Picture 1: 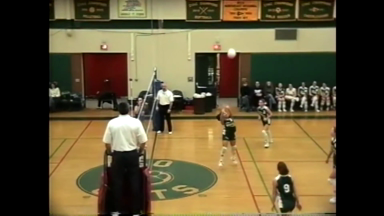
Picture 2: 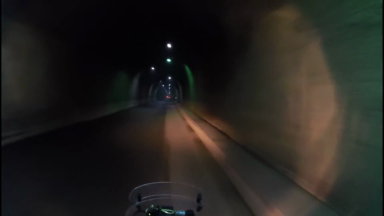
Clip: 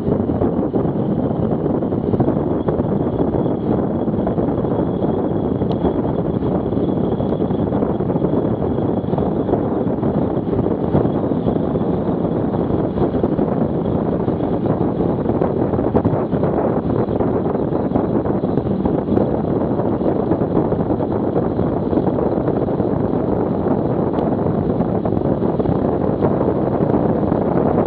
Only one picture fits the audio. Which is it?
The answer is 2